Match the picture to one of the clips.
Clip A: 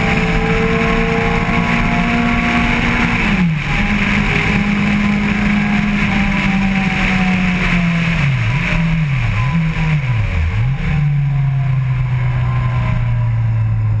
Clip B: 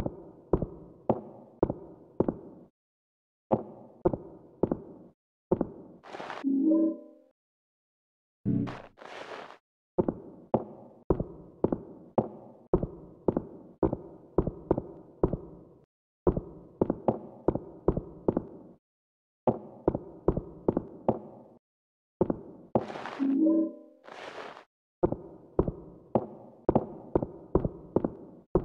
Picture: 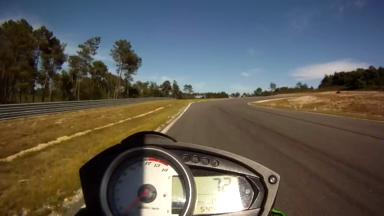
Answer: A